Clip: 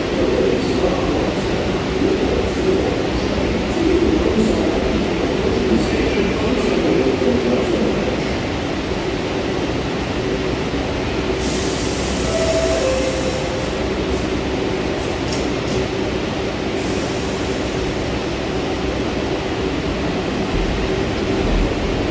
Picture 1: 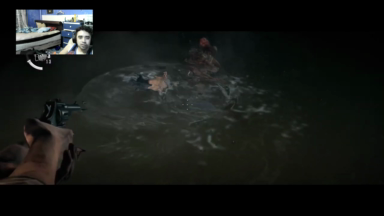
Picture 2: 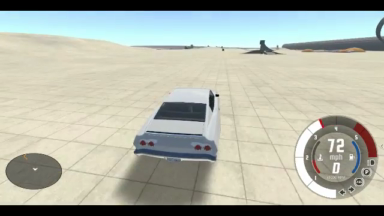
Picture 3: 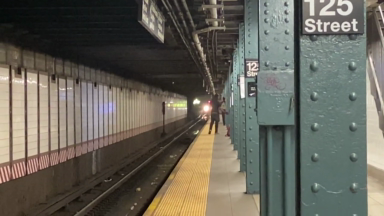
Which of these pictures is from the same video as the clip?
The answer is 3